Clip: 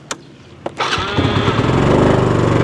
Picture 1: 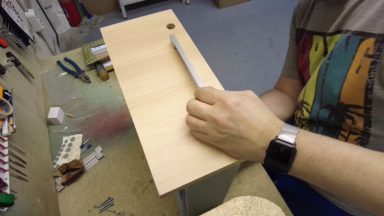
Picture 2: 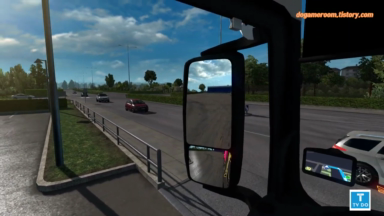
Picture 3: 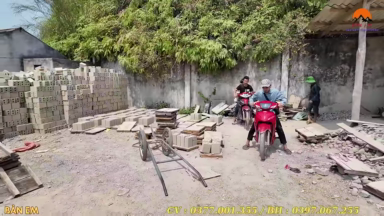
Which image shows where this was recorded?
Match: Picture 3